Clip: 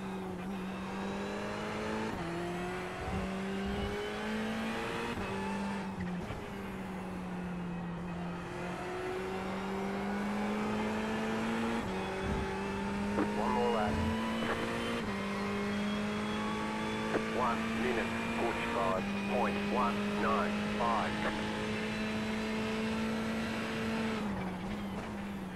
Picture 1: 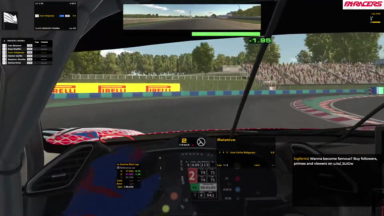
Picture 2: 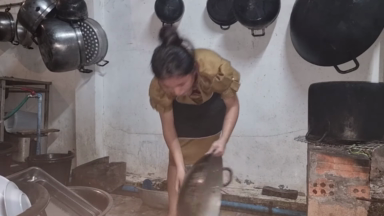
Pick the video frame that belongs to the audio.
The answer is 1